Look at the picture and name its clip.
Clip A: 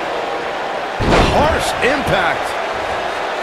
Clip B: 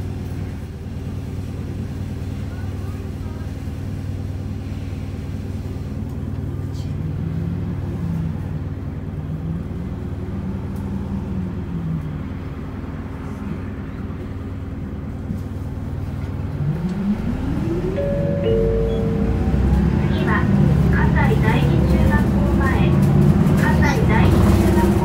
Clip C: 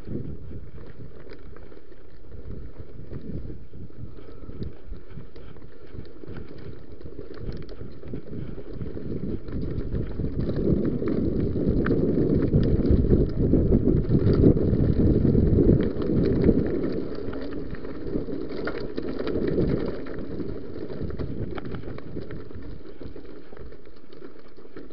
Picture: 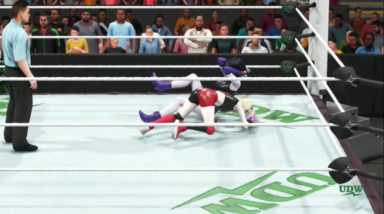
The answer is A